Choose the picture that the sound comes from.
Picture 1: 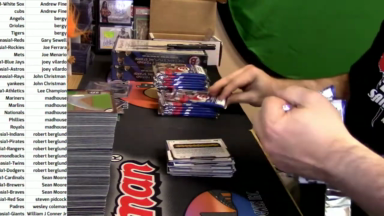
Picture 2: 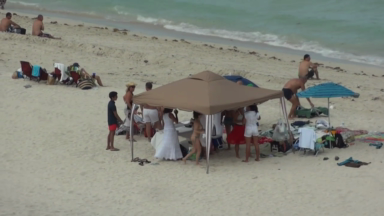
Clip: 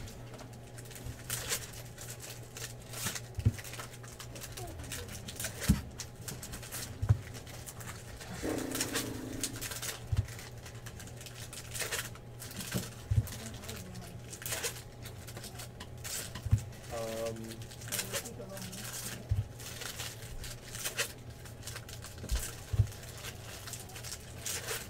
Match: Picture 1